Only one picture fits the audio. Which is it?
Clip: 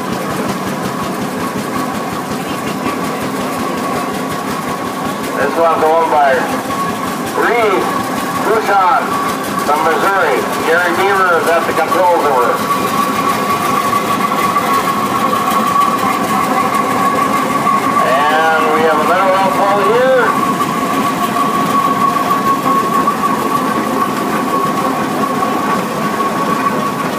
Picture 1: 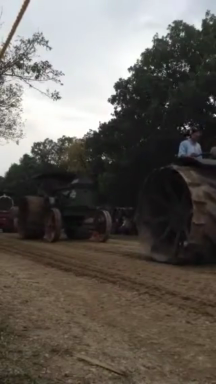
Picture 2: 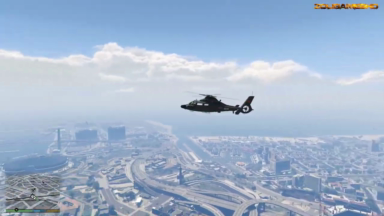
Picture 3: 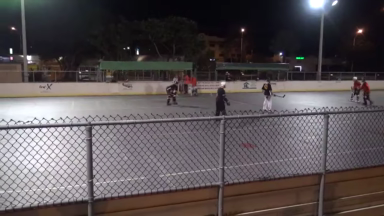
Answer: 1